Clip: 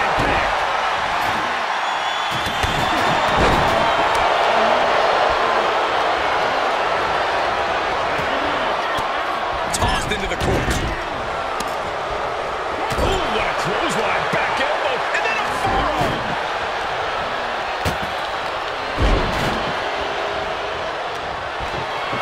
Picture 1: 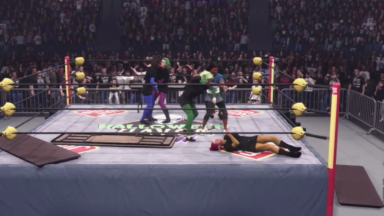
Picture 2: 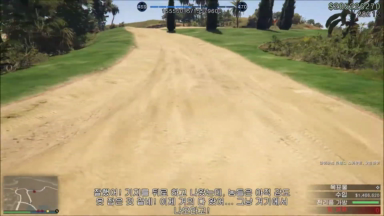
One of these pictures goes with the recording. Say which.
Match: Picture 1